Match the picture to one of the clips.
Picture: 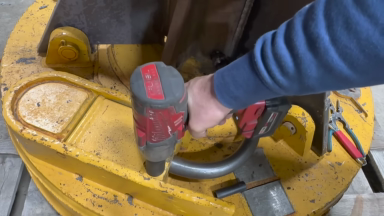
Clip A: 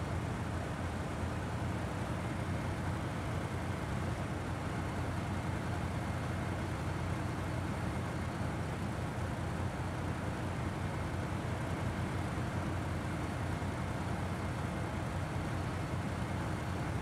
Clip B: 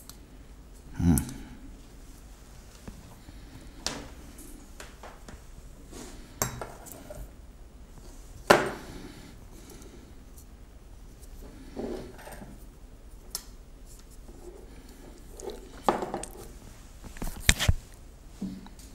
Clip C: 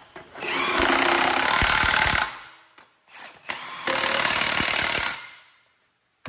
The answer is C